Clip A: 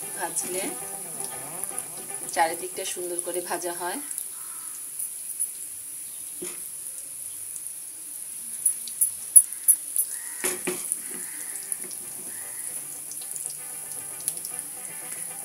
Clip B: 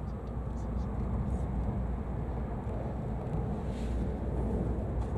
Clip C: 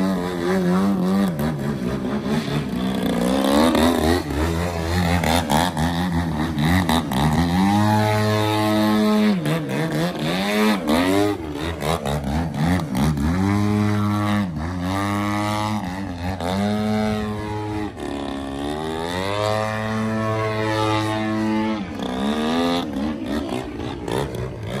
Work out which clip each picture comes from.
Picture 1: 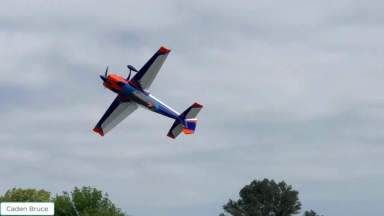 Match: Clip C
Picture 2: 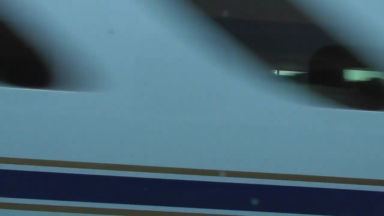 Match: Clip B